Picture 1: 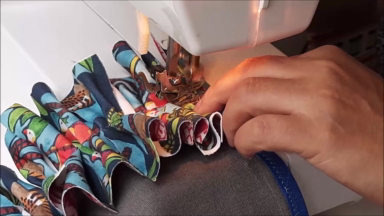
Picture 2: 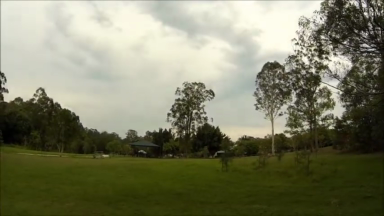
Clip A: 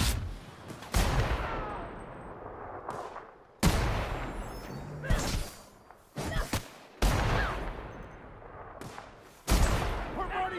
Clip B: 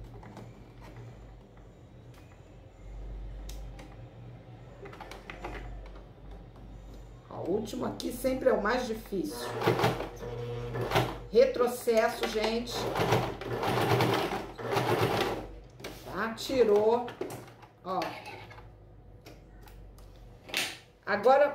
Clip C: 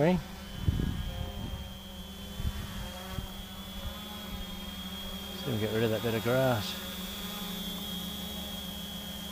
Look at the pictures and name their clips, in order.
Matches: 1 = B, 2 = C